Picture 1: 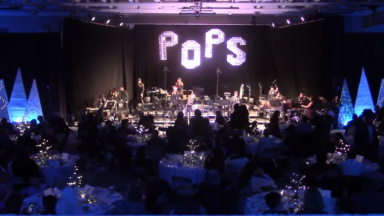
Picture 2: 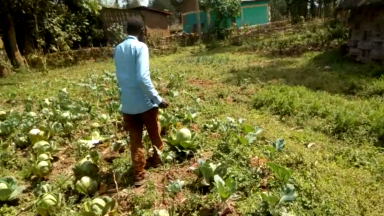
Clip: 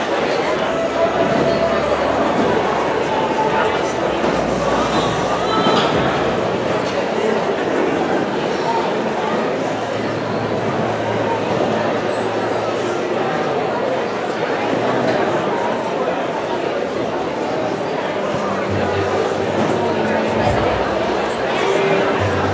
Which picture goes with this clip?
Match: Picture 1